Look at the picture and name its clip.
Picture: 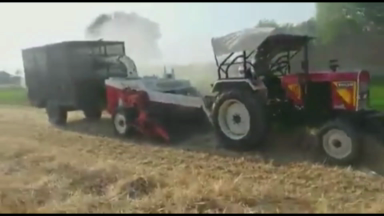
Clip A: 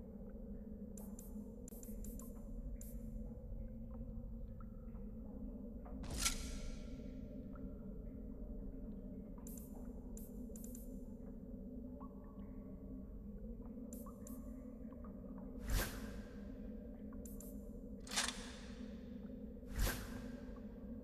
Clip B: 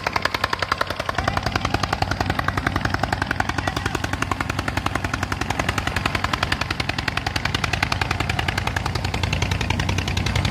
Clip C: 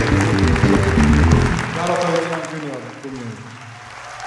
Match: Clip B